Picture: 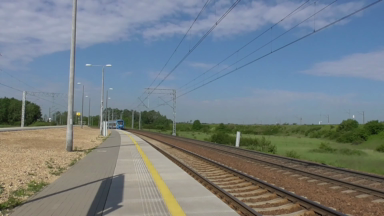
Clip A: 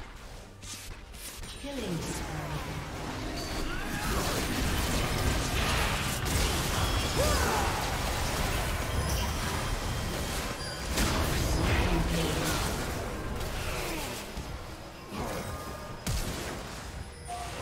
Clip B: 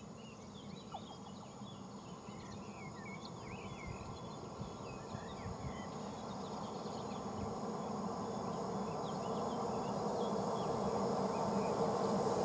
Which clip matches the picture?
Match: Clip B